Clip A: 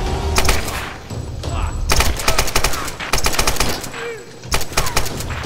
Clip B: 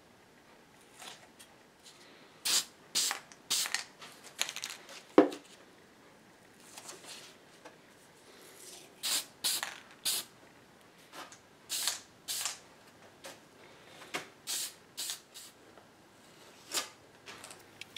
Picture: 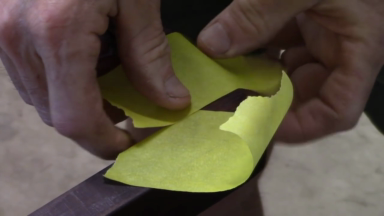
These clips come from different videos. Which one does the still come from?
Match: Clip B